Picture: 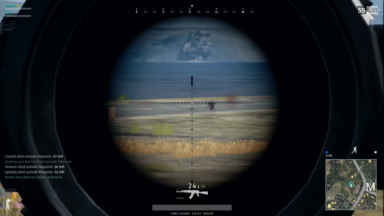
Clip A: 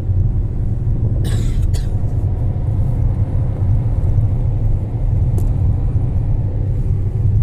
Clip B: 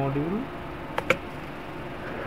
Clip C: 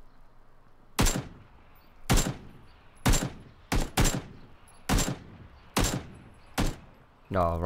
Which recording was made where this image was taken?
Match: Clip C